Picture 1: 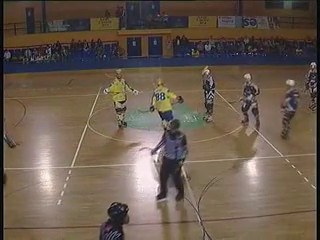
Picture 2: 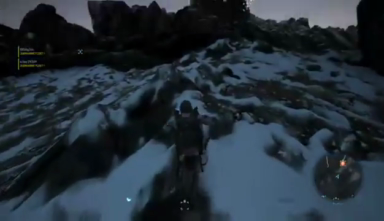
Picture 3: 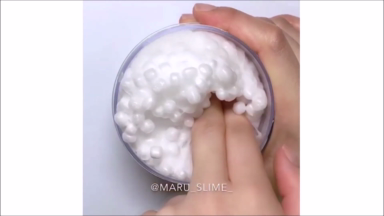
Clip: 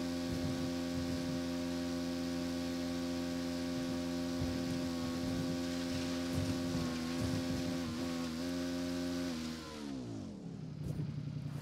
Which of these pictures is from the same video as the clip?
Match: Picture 2